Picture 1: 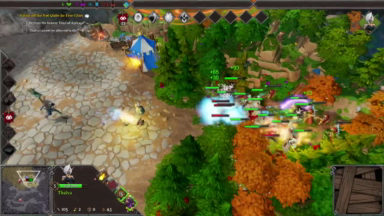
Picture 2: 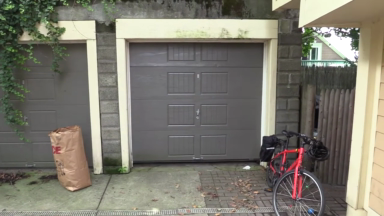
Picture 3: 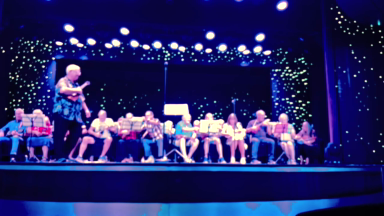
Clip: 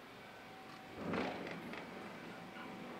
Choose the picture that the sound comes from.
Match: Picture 2